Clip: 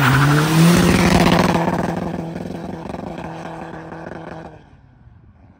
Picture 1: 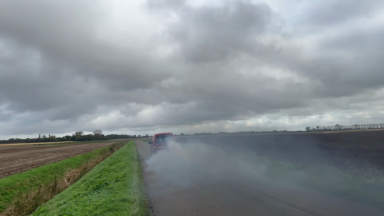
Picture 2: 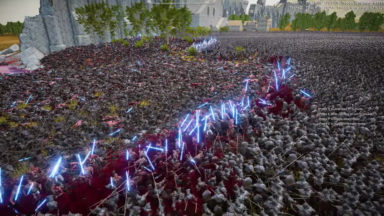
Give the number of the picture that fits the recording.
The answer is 1